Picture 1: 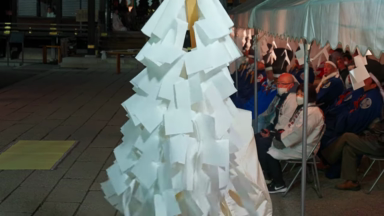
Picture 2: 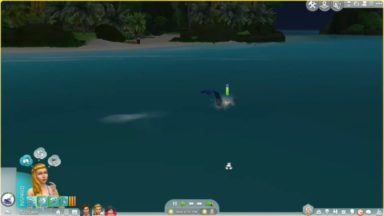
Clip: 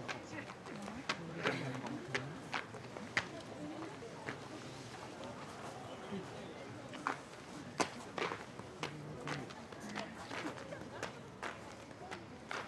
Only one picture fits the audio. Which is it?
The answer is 1